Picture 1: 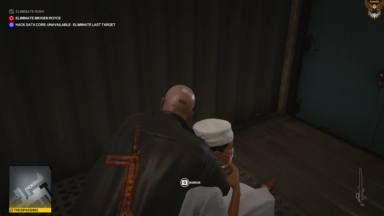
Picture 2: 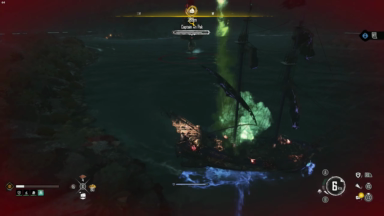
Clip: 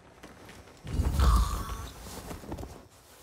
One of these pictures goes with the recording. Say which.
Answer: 1